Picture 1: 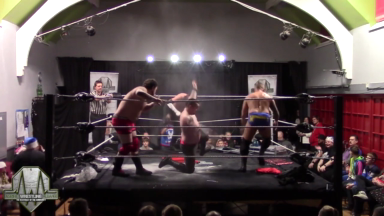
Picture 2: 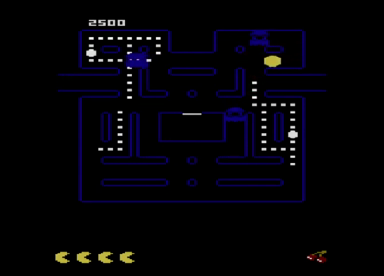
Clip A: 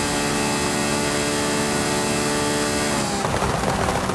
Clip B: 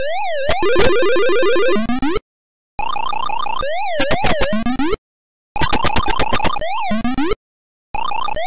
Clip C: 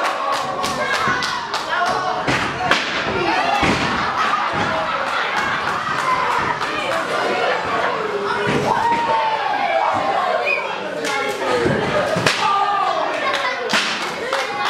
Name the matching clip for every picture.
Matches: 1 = C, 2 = B